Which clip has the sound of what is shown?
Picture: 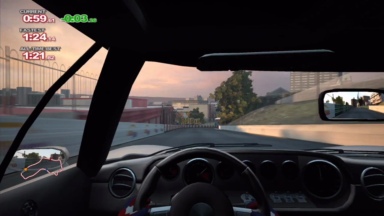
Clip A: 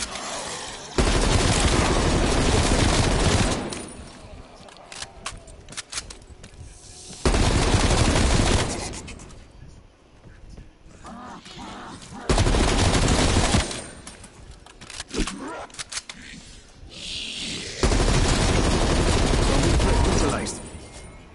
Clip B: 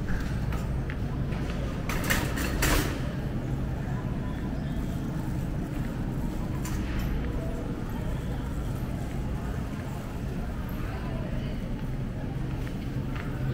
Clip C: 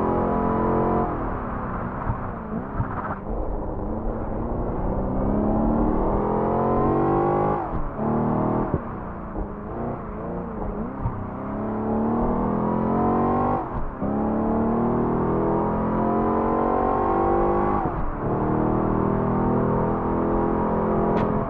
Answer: C